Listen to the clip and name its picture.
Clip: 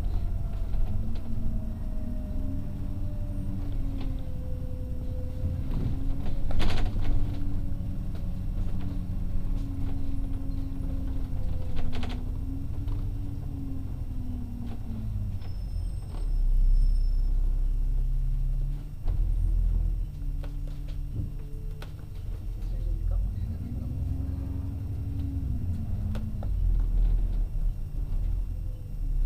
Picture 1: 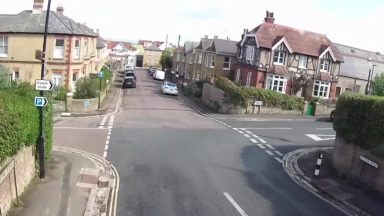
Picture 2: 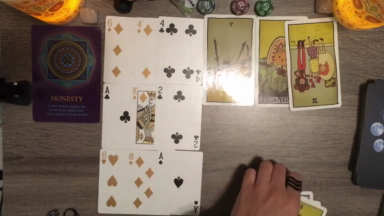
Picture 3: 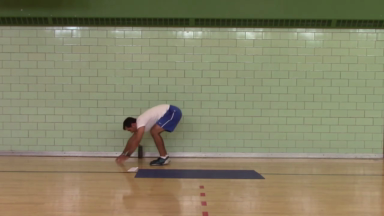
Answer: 1